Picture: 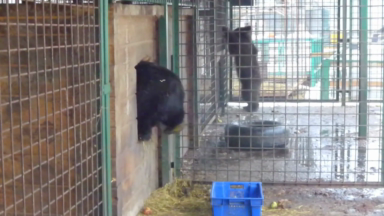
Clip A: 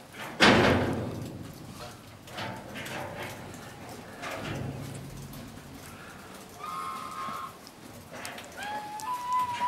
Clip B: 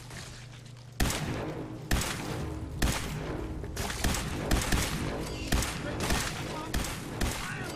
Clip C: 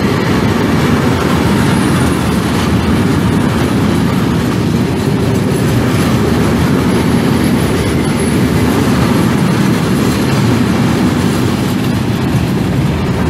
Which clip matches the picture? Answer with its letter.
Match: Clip A